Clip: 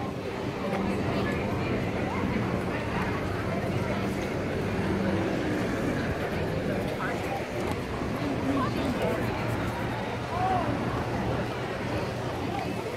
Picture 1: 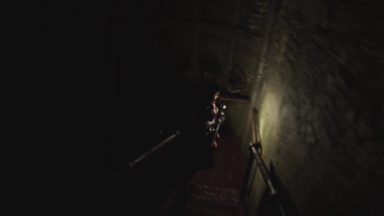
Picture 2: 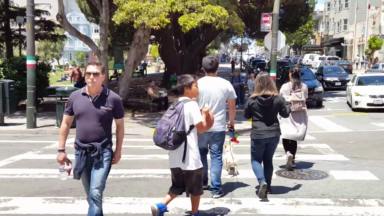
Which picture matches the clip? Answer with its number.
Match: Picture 2